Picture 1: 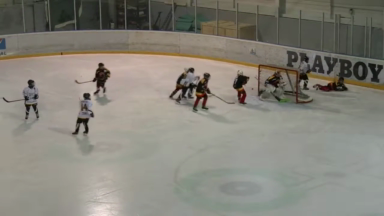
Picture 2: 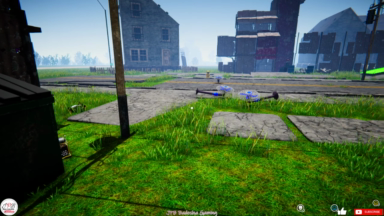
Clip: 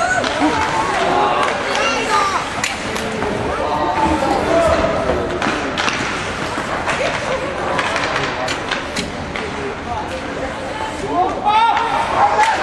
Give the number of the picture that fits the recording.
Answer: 1